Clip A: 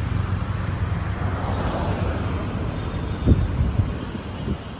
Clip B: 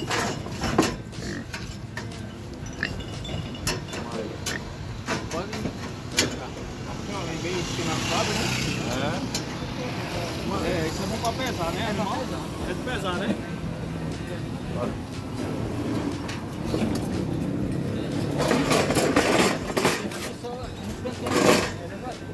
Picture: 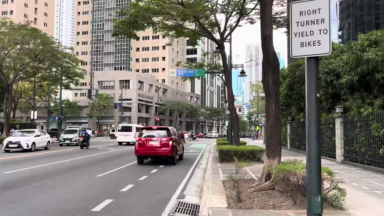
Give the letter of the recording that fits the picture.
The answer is A